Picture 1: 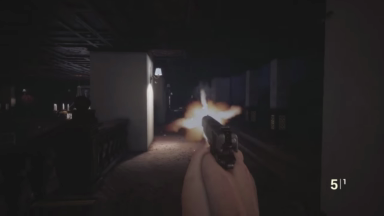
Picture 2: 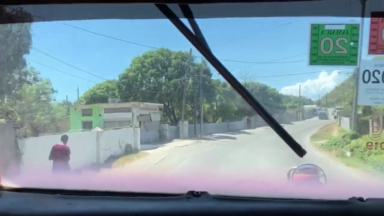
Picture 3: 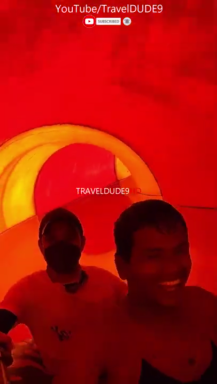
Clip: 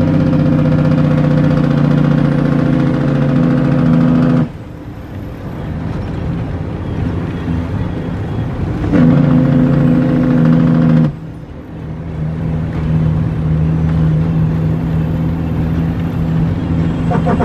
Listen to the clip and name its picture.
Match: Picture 2